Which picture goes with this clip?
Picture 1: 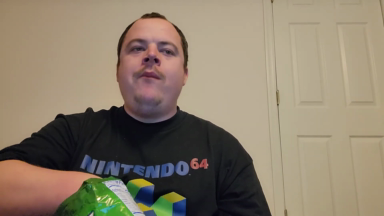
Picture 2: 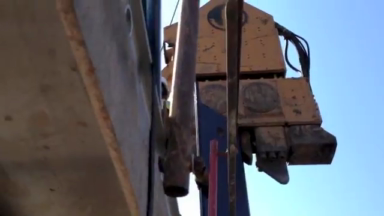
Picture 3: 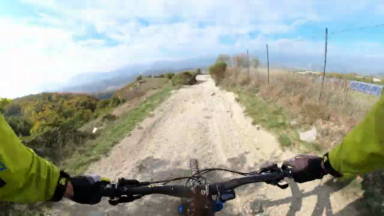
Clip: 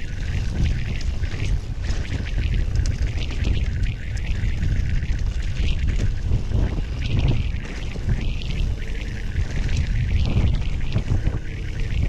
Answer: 3